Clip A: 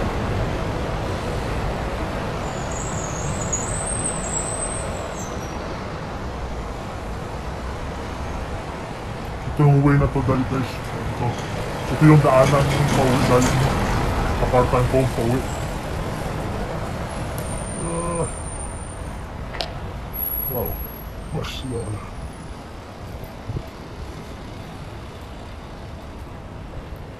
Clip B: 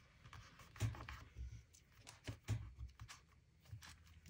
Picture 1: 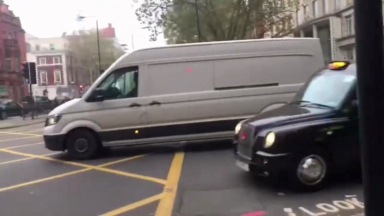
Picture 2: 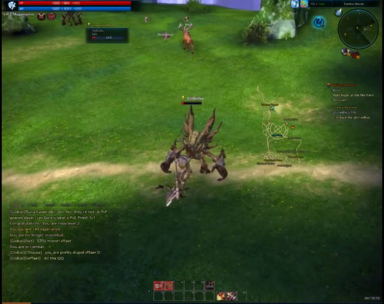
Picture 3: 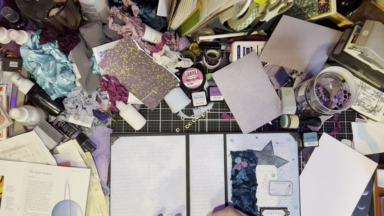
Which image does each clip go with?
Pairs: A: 1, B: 3